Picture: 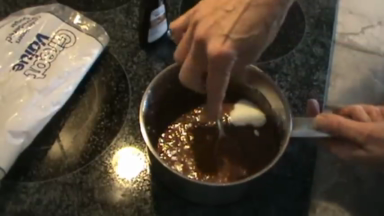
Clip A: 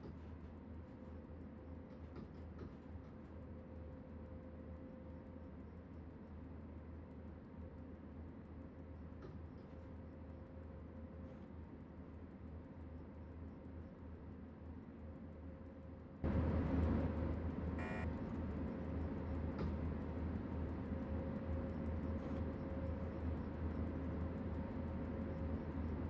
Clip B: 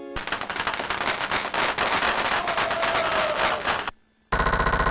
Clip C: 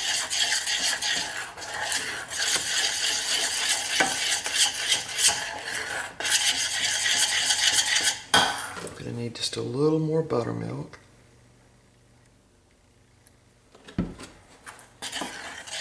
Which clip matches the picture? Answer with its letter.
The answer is C